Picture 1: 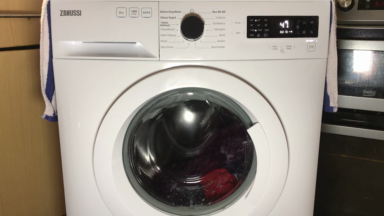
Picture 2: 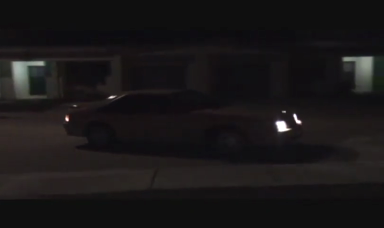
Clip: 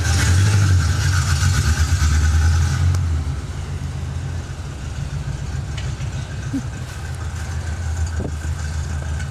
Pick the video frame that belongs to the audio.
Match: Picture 2